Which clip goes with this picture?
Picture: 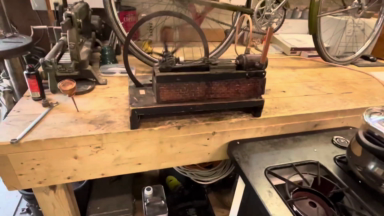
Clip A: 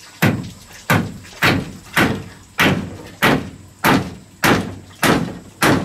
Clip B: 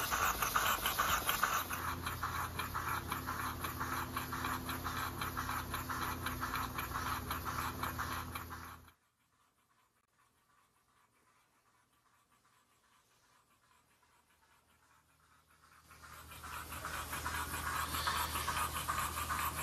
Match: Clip B